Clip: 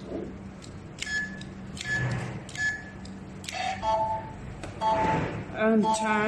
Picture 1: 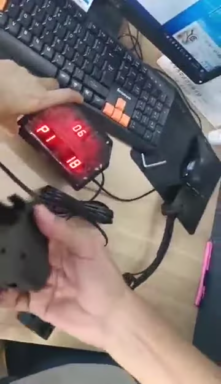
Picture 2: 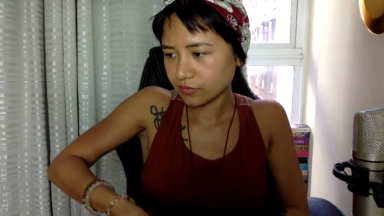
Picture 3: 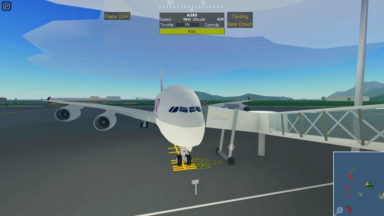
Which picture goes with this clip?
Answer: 1